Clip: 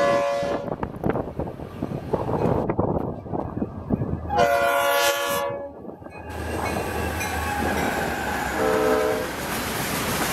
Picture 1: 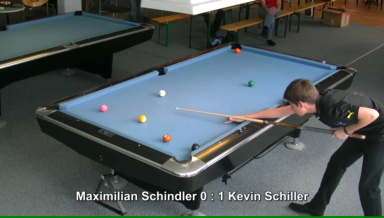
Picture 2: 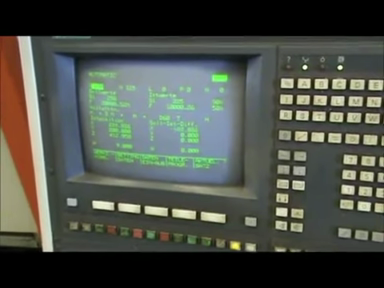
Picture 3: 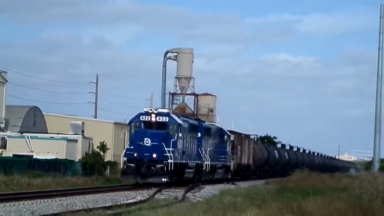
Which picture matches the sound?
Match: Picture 3